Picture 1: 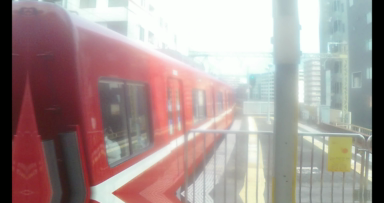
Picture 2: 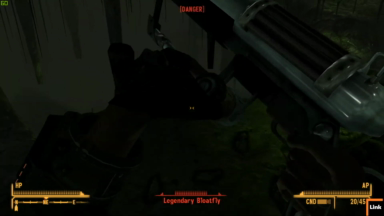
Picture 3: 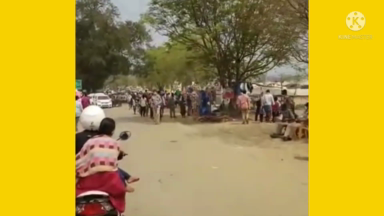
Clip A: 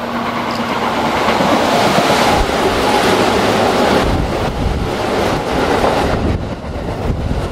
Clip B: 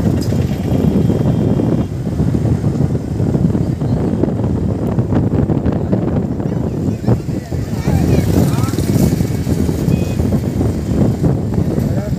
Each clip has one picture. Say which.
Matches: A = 1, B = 3